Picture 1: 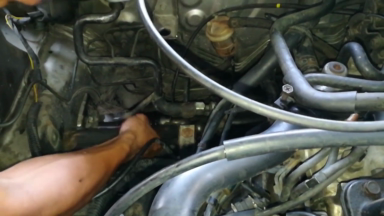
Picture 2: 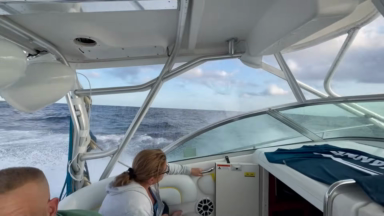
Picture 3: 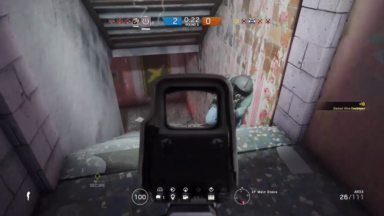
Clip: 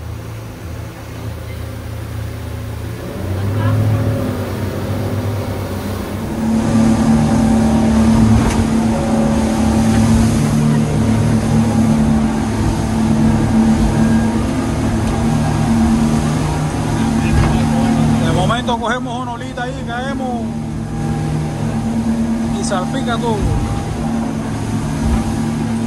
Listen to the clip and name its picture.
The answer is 2